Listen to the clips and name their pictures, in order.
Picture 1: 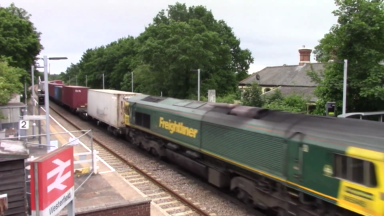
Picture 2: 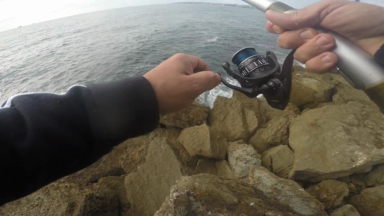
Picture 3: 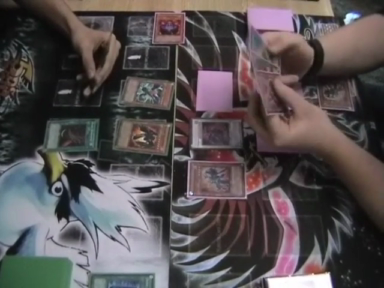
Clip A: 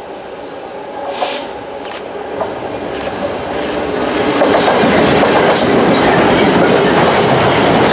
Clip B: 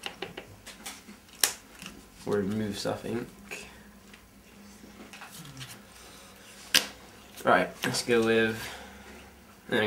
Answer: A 1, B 3